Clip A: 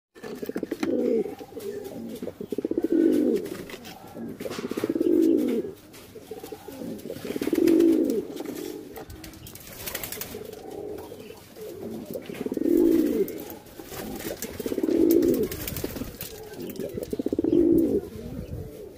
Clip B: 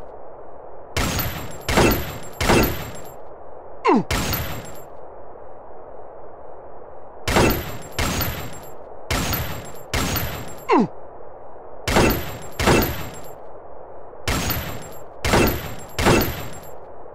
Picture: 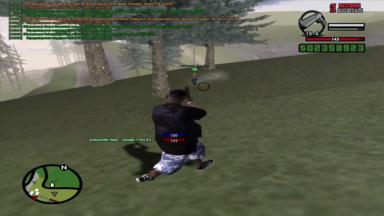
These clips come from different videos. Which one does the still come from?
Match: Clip B